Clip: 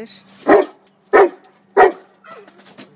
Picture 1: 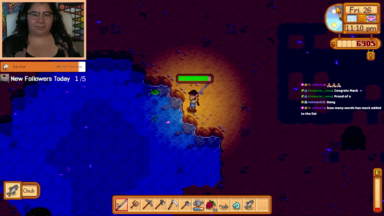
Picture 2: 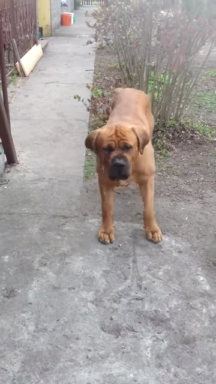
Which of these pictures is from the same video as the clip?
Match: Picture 2